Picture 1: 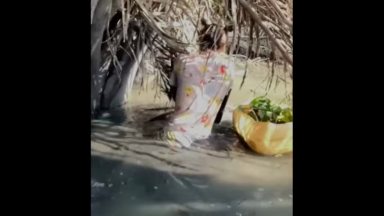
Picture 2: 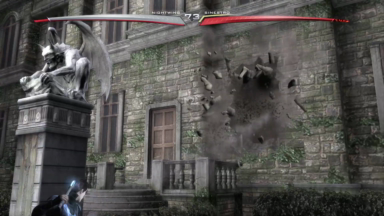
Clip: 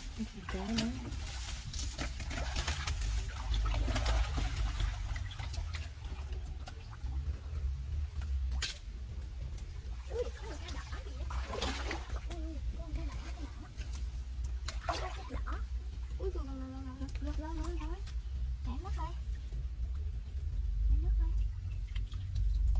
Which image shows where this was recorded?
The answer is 1